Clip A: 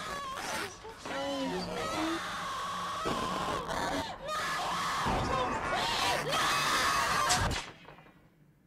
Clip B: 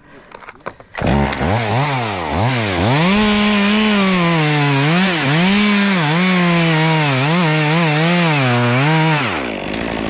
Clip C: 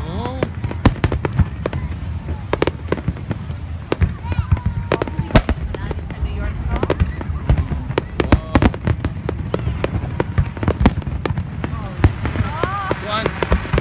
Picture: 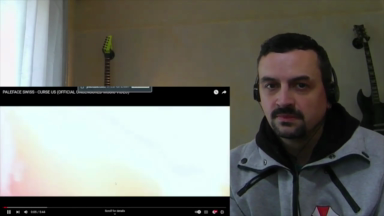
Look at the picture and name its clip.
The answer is A